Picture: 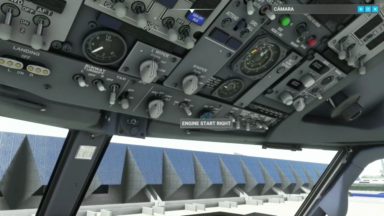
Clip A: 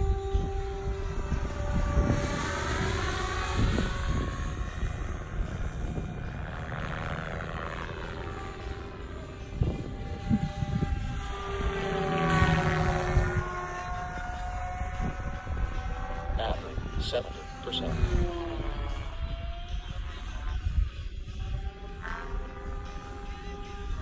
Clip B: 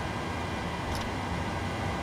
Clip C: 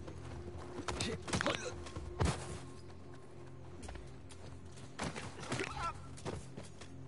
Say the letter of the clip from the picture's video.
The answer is B